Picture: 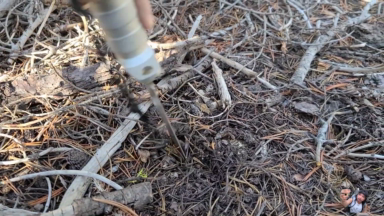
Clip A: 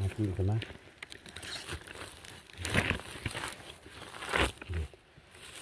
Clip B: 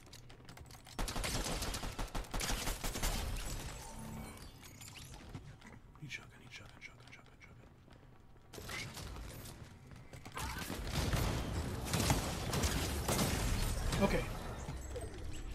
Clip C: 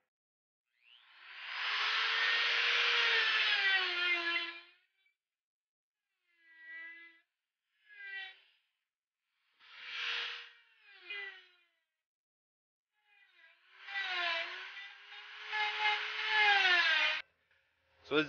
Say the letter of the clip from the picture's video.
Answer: A